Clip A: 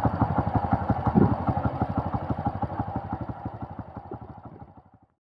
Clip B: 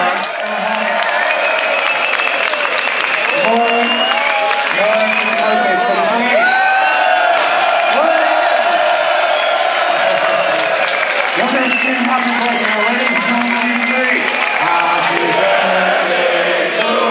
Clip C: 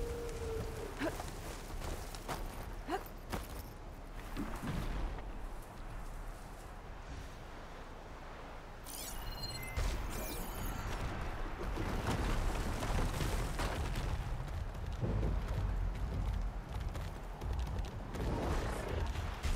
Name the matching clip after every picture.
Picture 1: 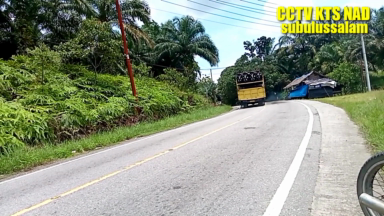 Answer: A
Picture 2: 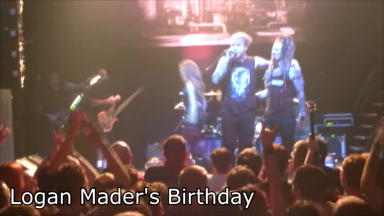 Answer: B